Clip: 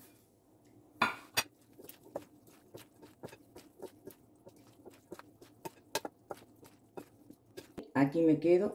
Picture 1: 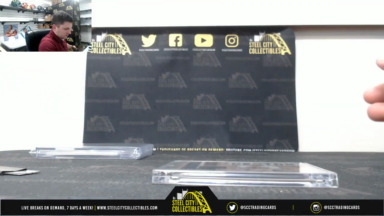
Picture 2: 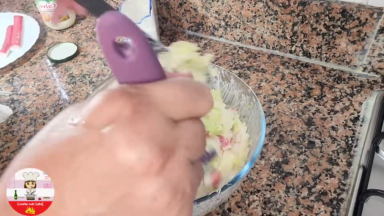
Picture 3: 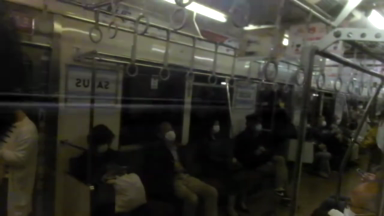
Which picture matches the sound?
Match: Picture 2